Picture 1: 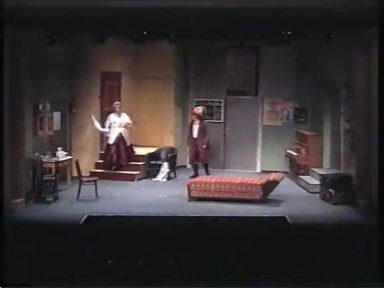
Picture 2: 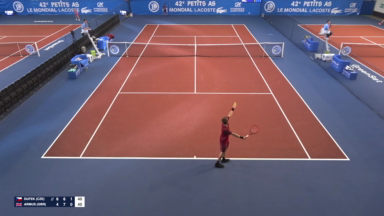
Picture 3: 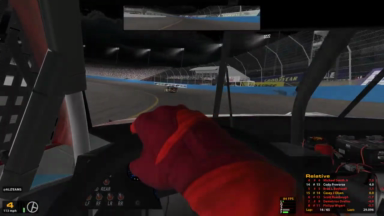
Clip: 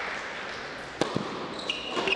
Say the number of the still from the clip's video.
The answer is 2